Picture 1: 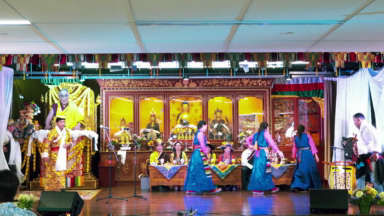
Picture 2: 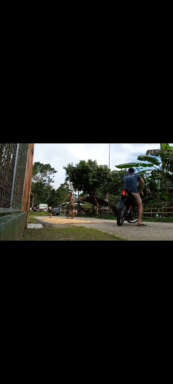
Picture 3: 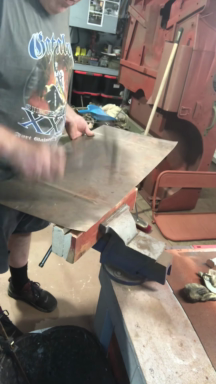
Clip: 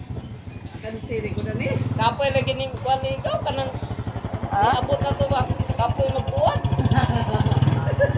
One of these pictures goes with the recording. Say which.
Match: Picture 2